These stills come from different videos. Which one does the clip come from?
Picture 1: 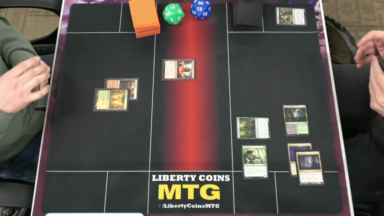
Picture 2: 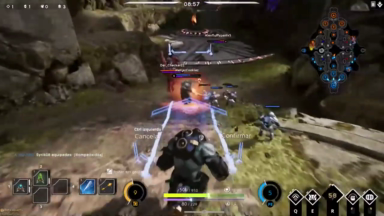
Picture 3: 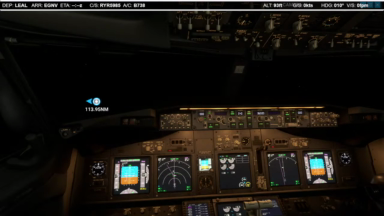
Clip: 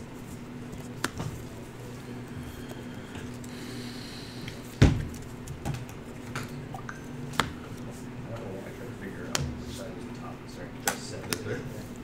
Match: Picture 1